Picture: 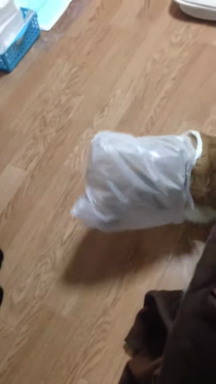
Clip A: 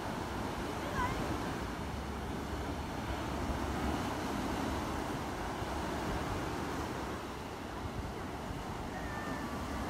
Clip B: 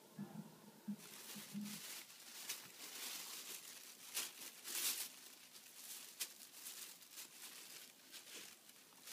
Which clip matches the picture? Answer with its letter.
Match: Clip B